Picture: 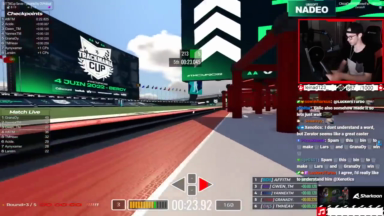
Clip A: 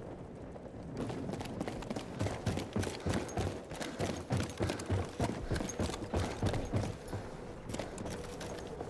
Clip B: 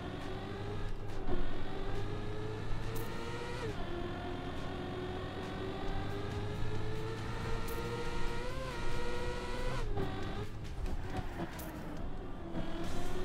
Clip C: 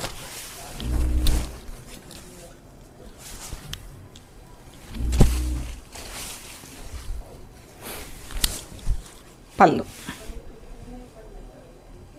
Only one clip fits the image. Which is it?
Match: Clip B